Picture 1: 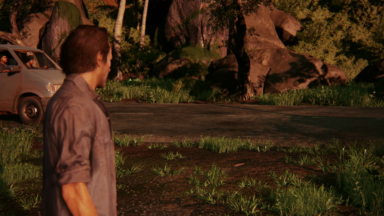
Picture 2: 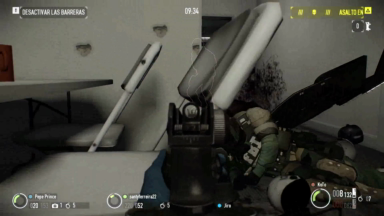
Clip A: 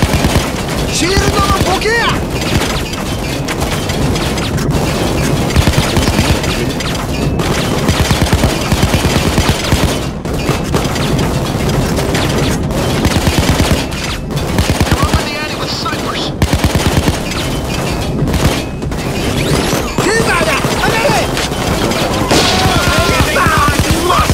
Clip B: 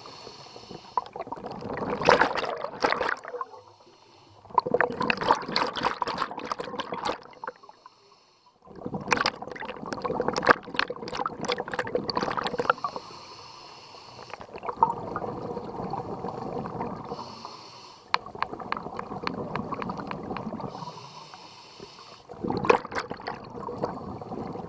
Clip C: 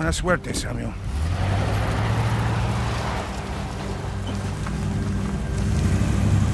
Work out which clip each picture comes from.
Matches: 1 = C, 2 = A